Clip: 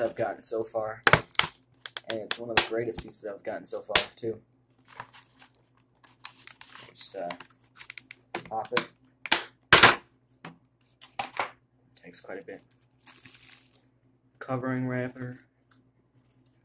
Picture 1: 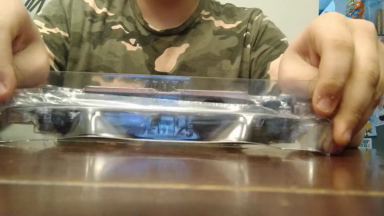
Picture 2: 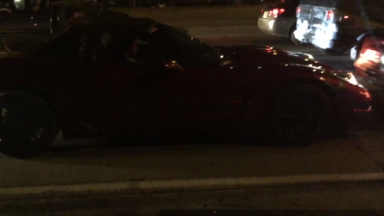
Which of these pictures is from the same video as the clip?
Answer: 1